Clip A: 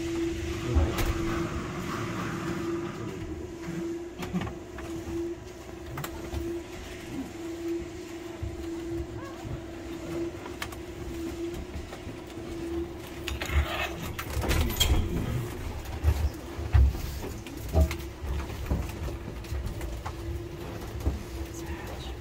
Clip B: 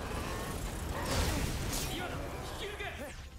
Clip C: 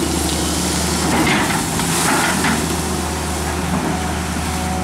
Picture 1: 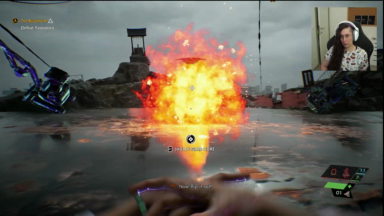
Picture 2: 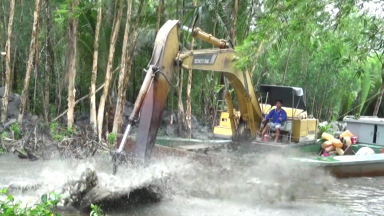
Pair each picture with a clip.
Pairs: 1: B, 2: C